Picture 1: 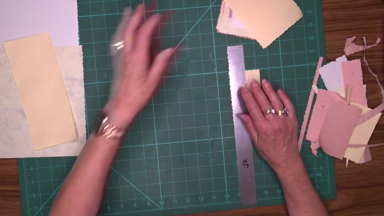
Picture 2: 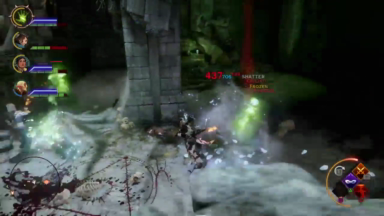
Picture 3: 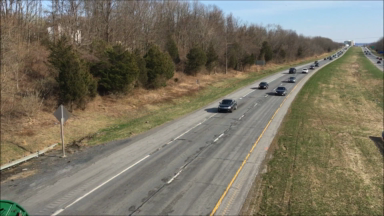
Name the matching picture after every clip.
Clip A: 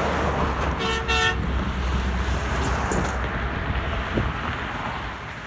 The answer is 3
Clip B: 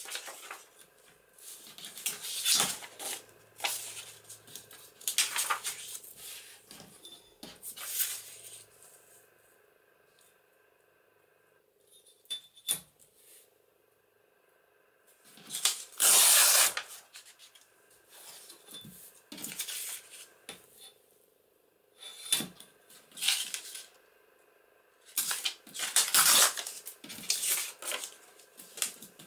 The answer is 1